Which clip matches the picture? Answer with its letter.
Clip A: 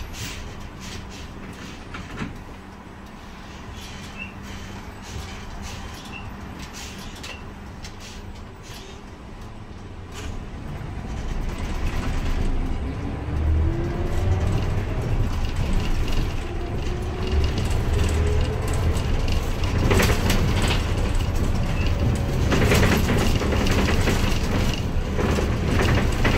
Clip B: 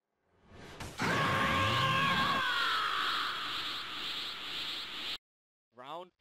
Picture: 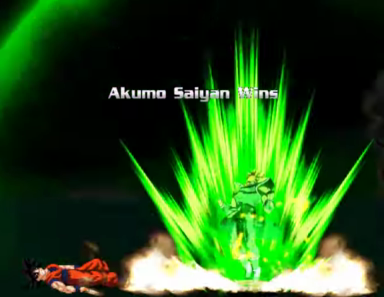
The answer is B